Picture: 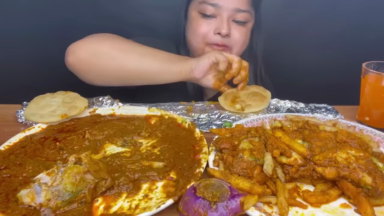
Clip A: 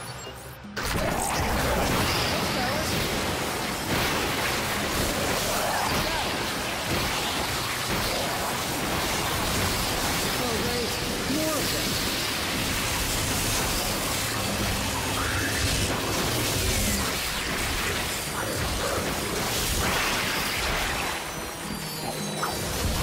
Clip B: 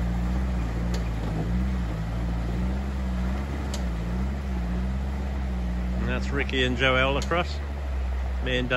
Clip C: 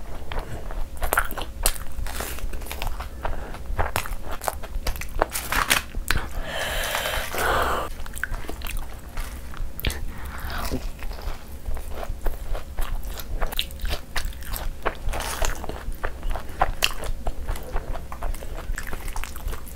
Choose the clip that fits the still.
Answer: C